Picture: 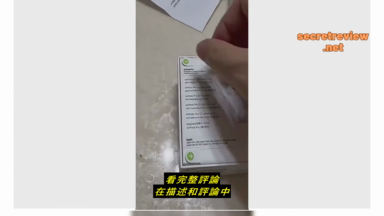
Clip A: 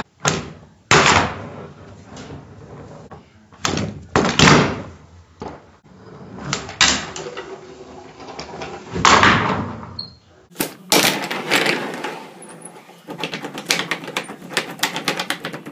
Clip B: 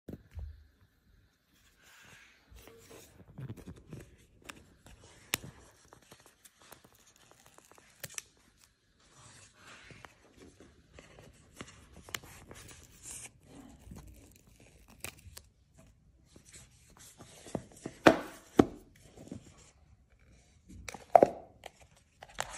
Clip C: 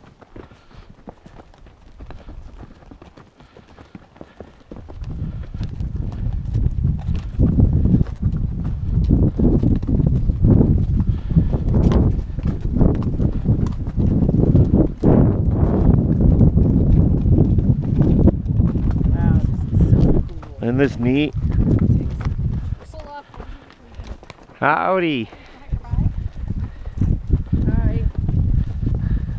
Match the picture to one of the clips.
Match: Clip B